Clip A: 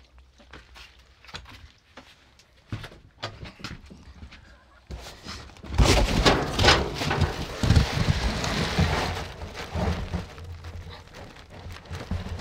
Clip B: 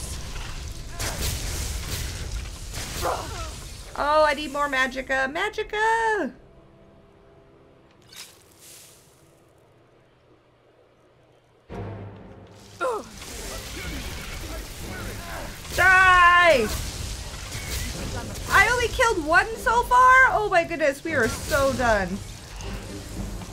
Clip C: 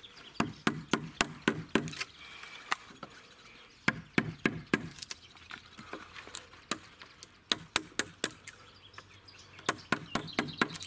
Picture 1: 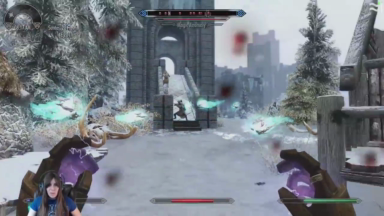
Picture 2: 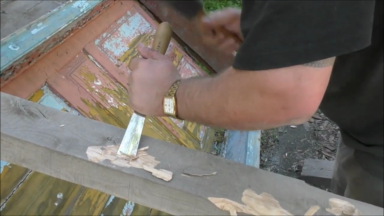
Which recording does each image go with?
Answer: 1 B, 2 C